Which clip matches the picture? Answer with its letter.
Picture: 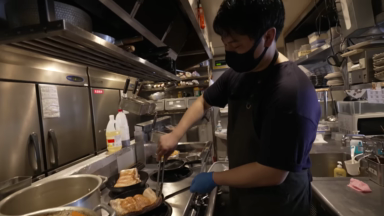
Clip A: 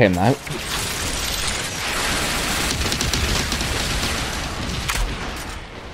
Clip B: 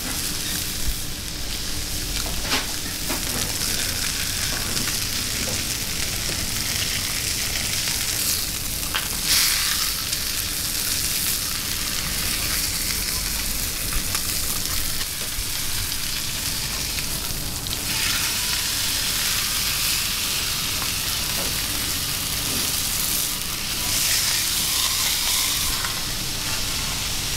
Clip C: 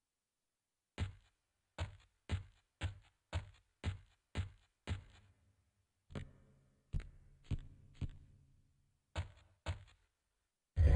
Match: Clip B